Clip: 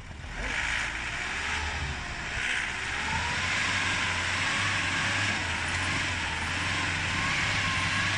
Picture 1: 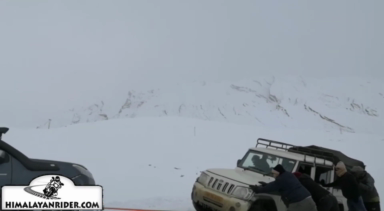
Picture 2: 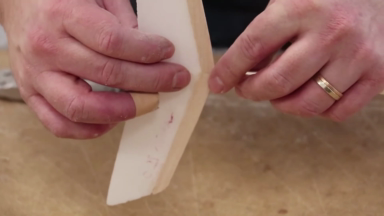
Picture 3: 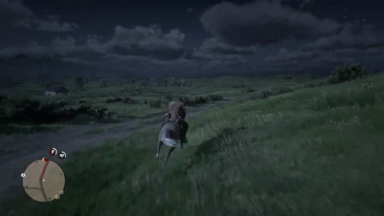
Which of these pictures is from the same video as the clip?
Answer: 1